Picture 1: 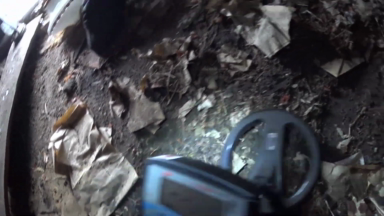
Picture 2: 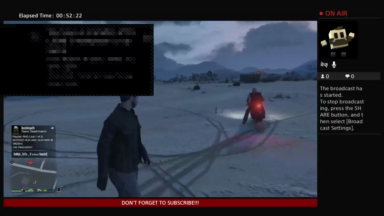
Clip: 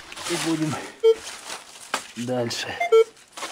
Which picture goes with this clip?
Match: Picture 1